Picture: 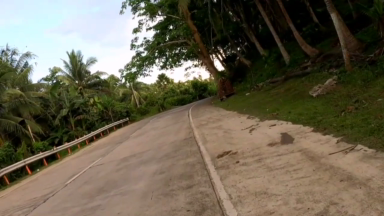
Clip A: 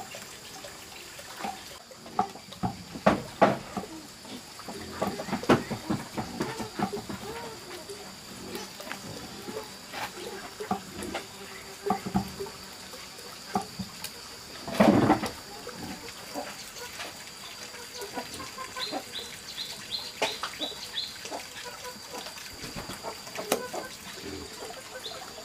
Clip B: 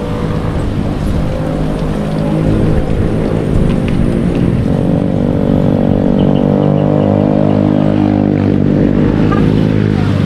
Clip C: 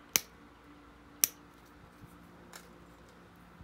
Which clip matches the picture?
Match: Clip B